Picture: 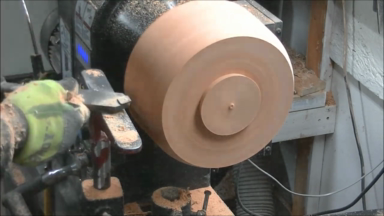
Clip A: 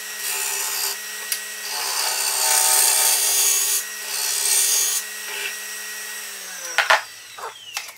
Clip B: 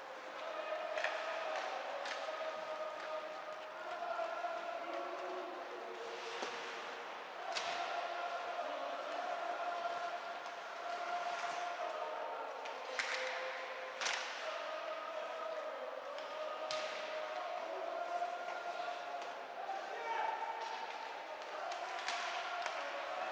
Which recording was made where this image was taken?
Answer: A